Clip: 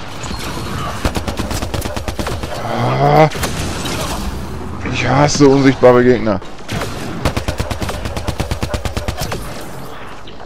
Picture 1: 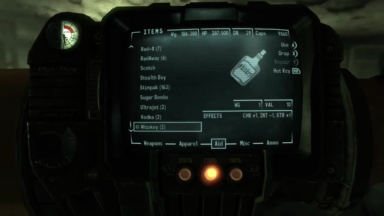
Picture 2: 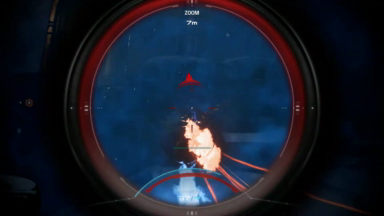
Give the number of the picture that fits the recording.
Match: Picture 2